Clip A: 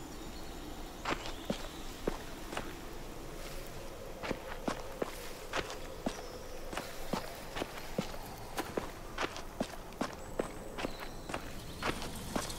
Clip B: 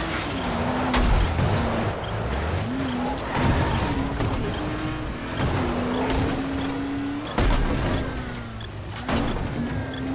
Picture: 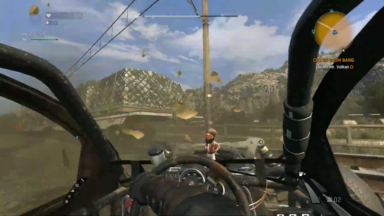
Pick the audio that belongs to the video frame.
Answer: B